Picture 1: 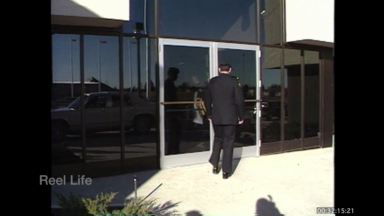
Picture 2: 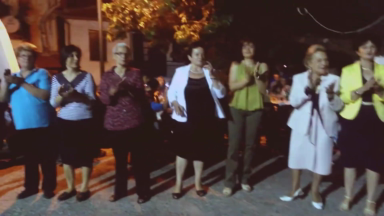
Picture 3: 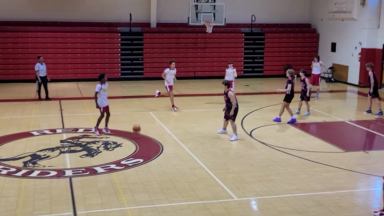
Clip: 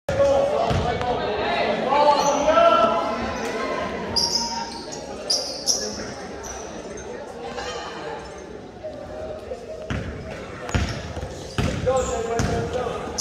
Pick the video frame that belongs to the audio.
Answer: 3